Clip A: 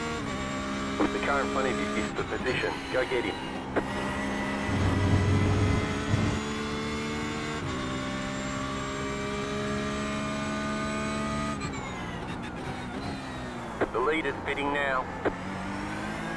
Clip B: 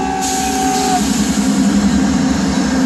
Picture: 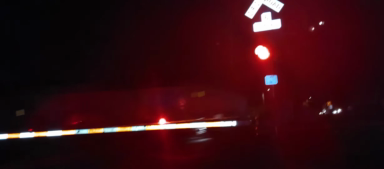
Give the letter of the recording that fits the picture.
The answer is B